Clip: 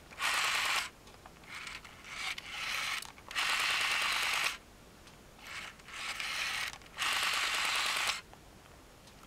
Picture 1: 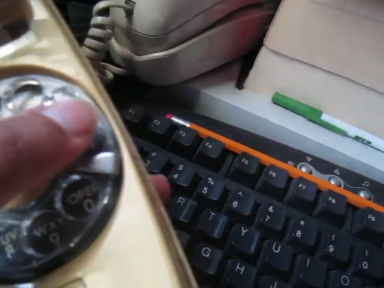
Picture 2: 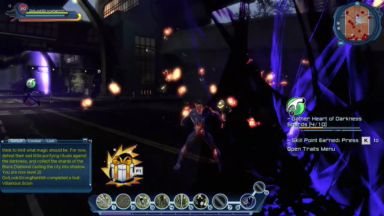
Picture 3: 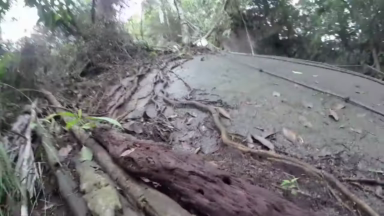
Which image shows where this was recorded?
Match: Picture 1